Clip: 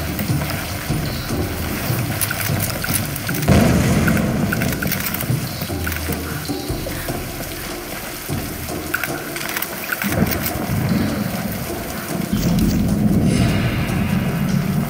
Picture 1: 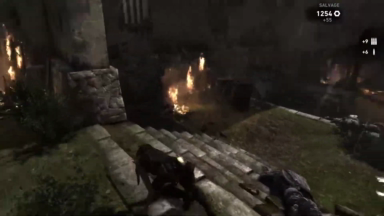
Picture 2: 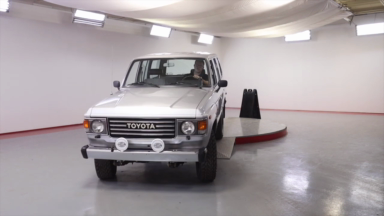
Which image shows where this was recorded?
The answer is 1